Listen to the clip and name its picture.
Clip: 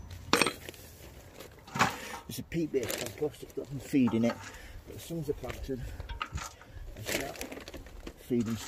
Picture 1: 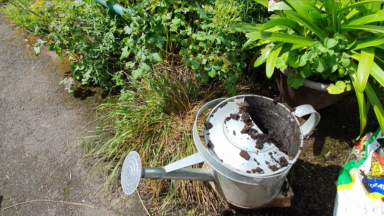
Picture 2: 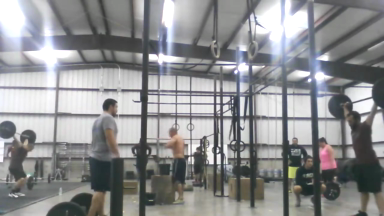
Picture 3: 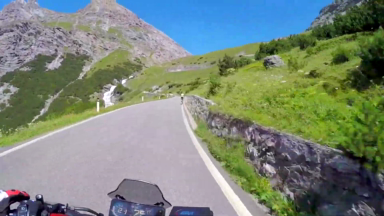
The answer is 1